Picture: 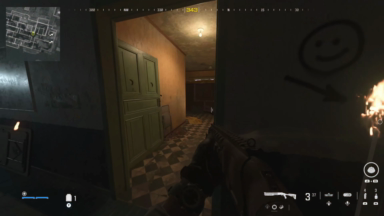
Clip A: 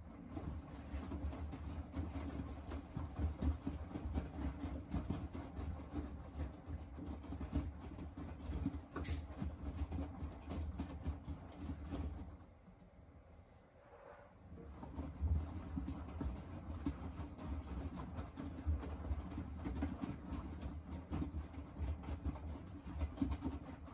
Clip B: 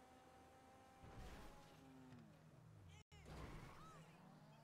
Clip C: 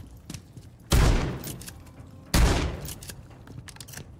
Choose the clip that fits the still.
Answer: C